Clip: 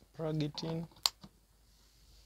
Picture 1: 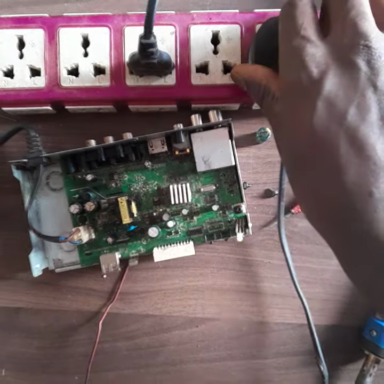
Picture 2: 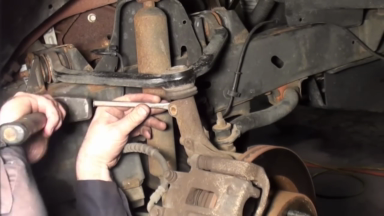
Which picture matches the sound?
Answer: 1